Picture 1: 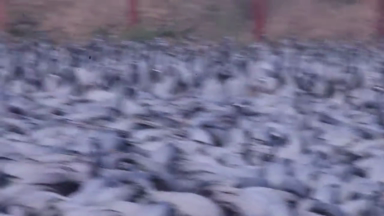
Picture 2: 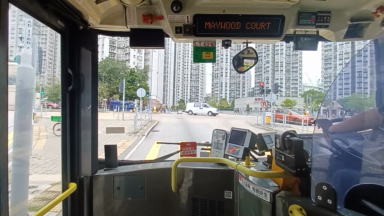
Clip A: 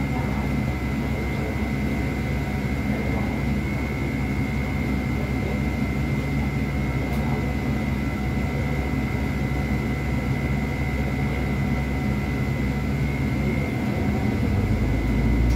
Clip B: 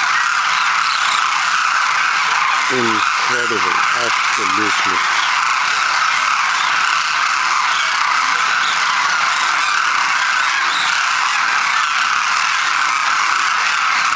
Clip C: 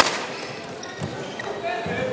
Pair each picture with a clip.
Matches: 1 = B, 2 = A